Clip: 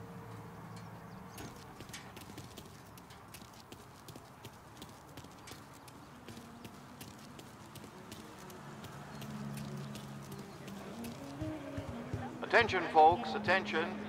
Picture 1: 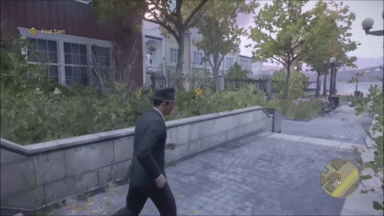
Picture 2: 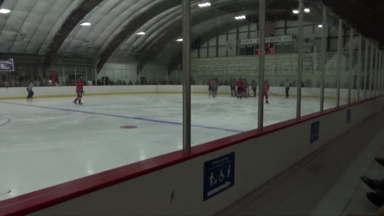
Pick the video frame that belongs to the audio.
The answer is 1